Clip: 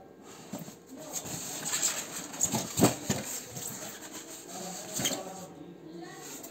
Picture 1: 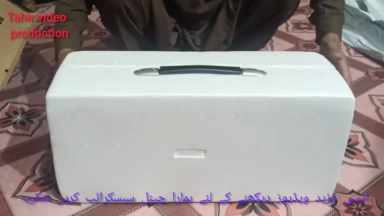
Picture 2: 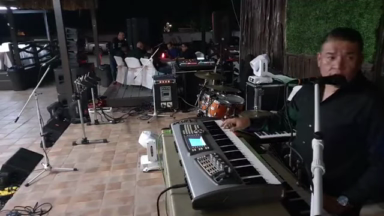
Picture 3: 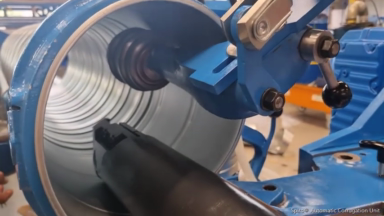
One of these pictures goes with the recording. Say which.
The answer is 1